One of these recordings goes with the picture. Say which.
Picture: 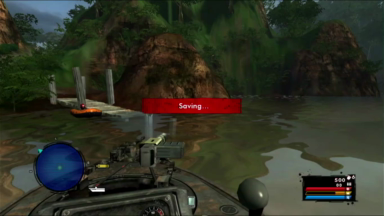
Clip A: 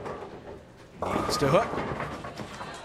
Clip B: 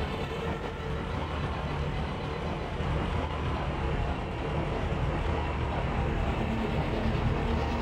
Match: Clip B